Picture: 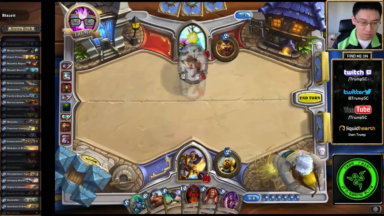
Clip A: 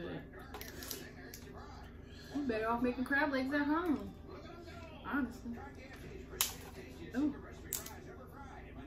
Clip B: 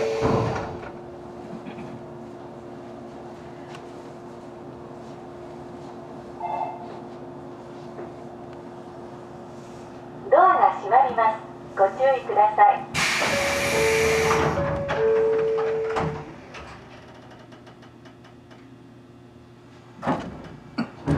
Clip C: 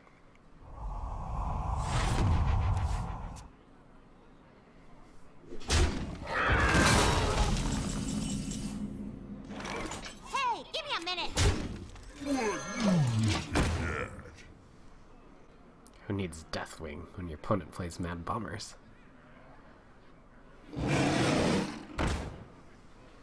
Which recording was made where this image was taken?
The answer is C